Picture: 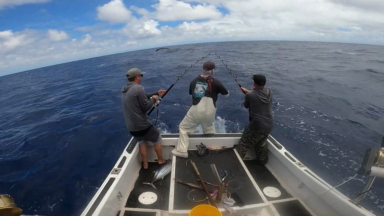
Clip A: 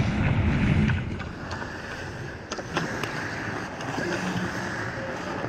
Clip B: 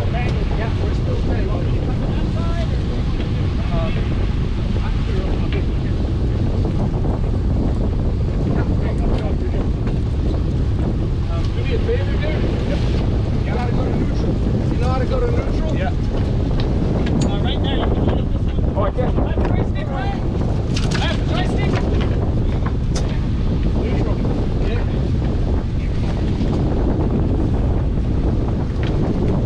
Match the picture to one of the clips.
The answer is B